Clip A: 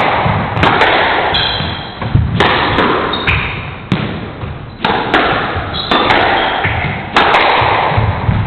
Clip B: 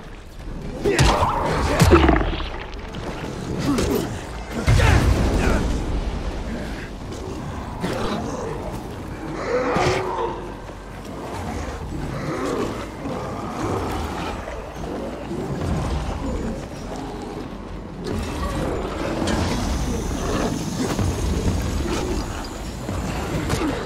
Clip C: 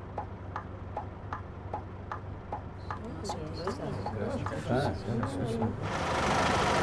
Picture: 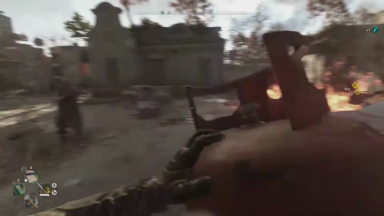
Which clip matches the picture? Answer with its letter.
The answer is B